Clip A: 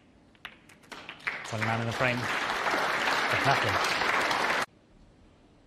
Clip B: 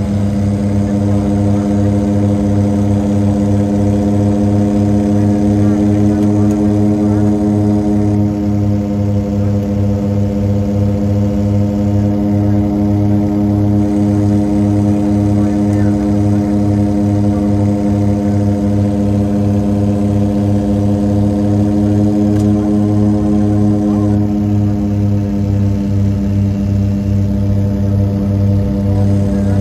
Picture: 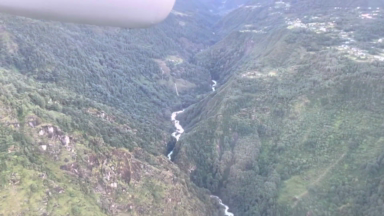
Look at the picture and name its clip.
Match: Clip B